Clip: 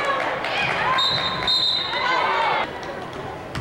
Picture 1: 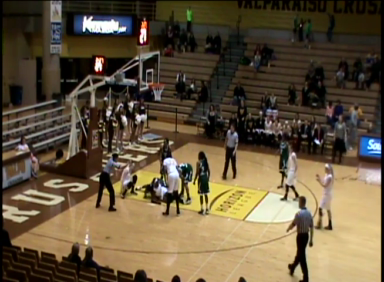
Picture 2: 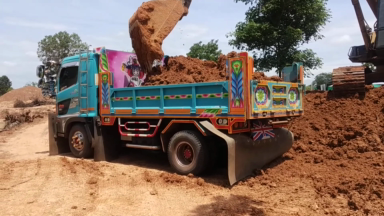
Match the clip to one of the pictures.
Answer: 1